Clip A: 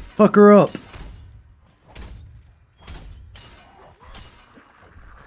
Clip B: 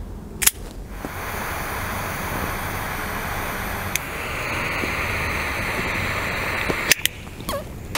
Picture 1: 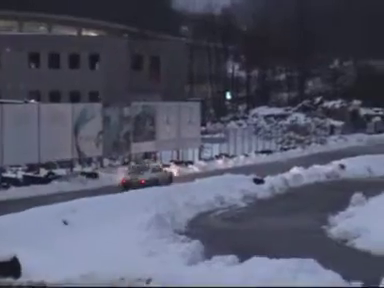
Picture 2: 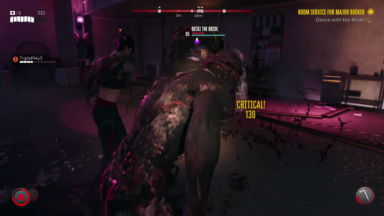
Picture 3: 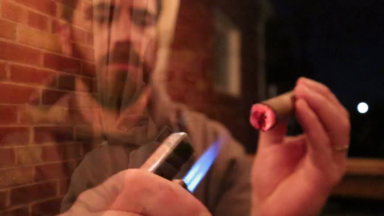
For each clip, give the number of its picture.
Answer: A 2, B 3